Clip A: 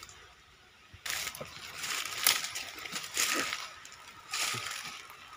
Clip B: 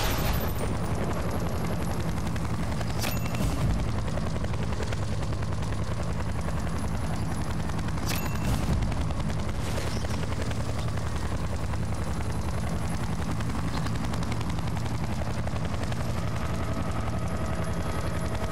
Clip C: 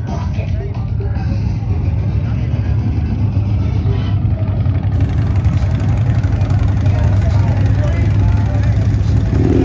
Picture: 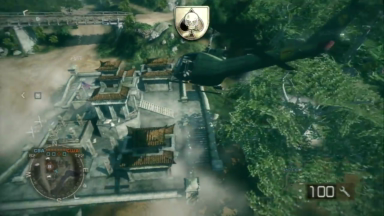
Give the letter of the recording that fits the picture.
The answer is B